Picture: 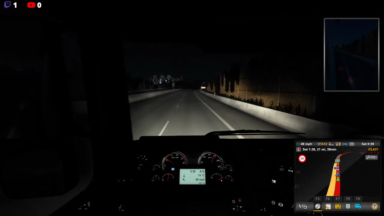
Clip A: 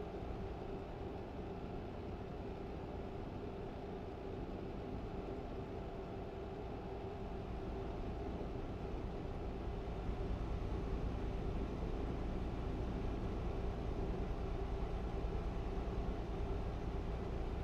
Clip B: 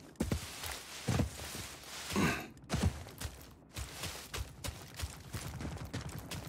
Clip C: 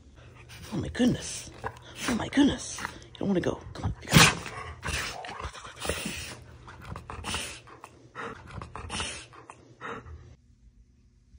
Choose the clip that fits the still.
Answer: A